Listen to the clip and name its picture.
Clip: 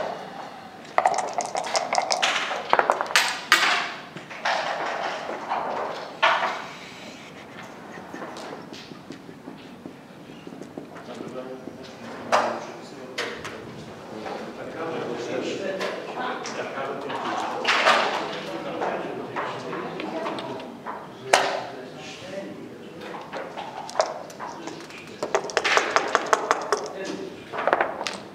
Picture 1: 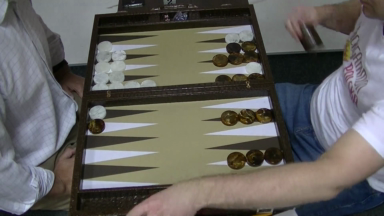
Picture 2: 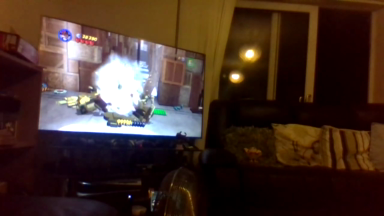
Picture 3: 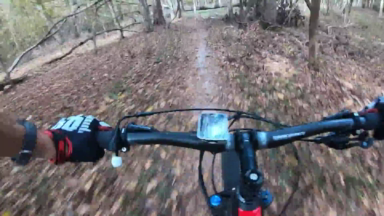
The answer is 1